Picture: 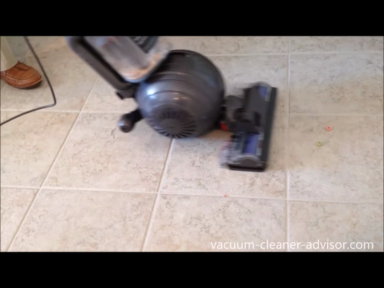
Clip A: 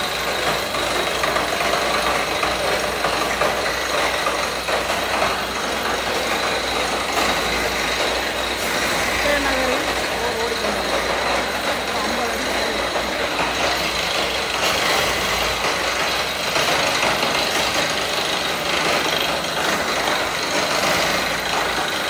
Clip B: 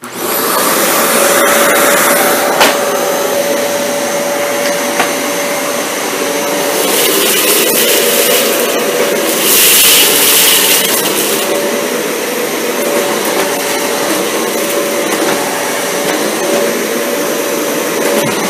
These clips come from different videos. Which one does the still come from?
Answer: B